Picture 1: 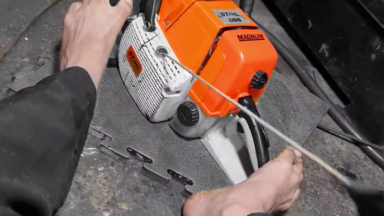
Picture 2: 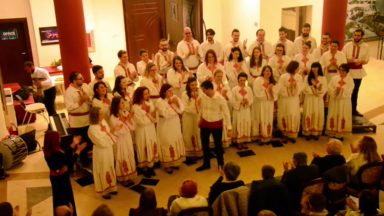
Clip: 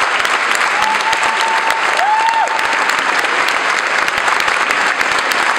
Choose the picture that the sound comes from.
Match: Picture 2